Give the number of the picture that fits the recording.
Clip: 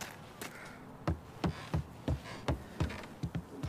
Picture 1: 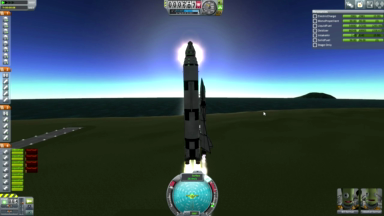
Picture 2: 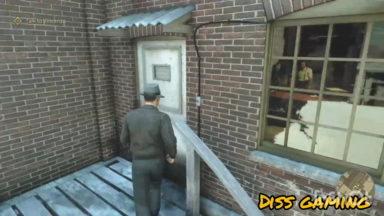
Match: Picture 2